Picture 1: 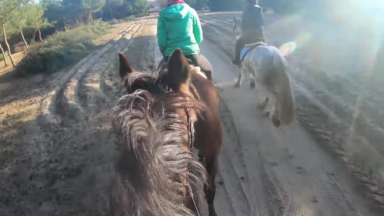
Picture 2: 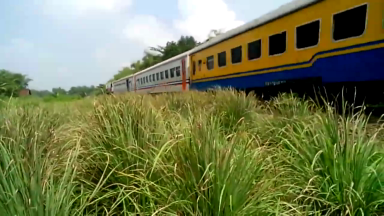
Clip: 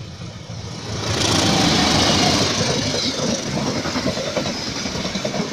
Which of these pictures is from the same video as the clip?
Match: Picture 2